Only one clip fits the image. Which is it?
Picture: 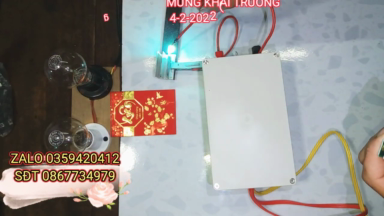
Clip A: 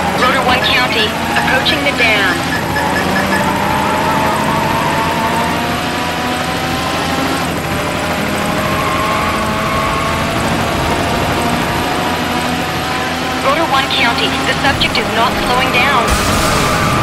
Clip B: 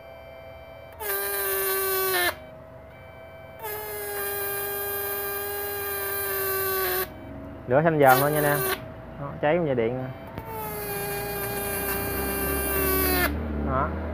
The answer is B